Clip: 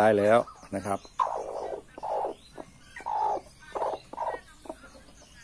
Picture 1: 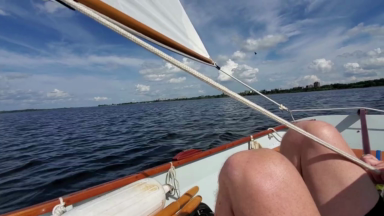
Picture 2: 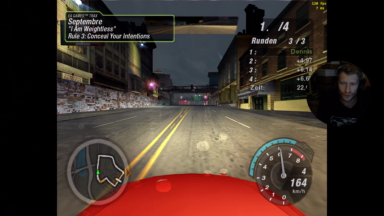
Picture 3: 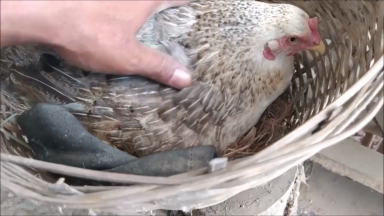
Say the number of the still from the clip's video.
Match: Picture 3